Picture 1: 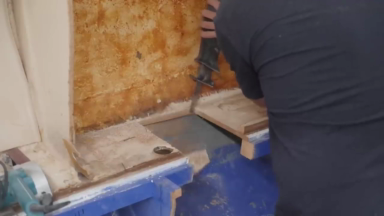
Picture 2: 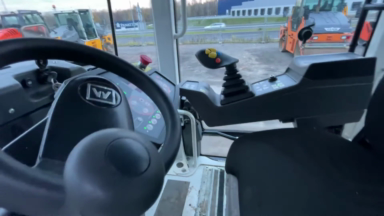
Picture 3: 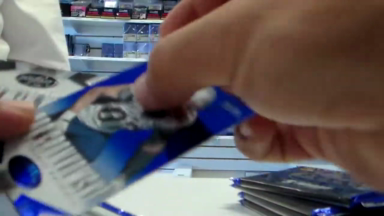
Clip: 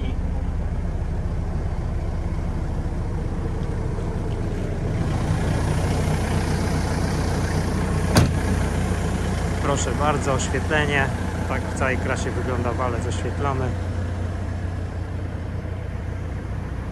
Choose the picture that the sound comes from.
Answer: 2